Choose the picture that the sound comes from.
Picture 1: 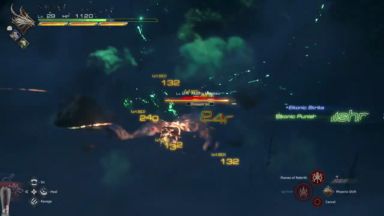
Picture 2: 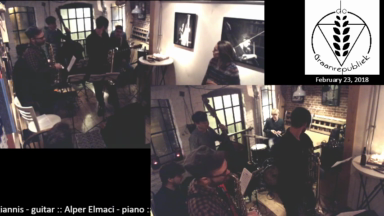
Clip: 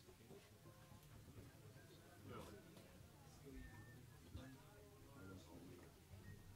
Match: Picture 2